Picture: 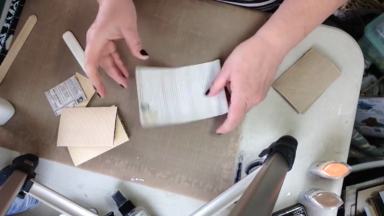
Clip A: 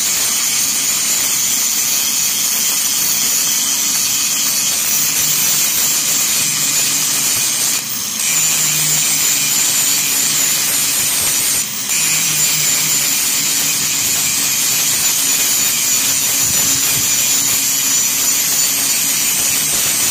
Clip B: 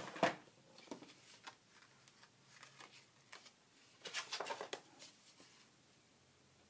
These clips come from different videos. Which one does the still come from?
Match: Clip B